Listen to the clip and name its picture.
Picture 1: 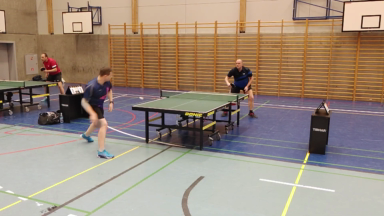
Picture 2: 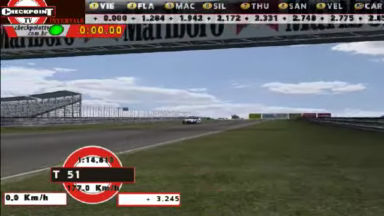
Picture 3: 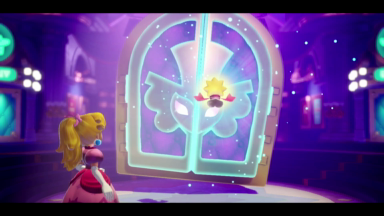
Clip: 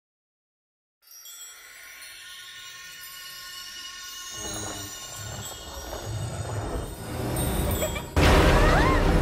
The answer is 3